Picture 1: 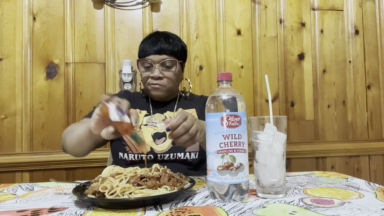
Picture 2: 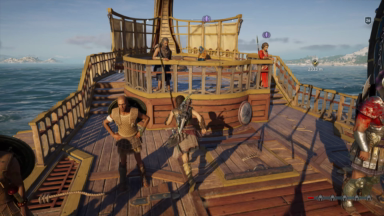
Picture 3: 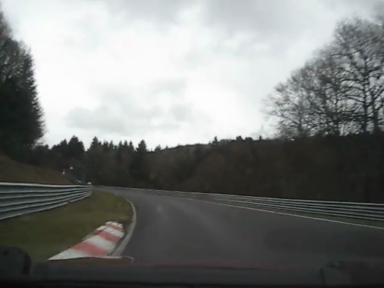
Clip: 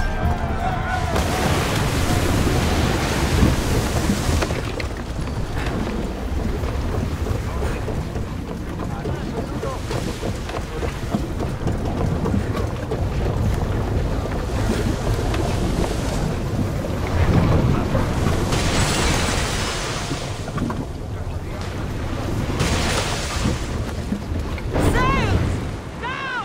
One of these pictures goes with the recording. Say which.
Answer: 2